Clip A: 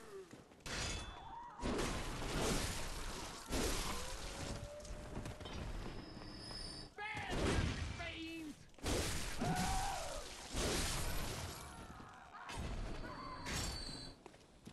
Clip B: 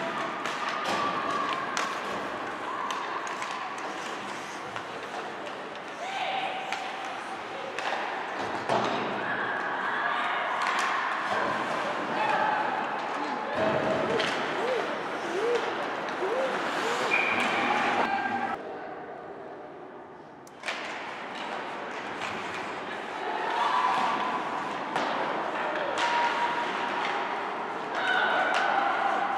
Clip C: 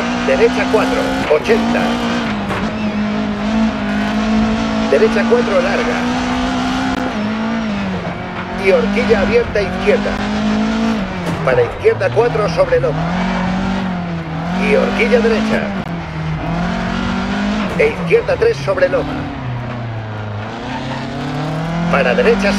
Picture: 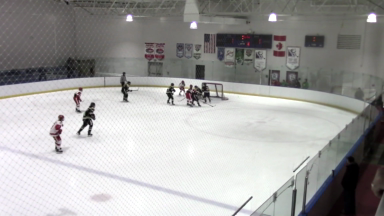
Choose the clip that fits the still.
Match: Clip B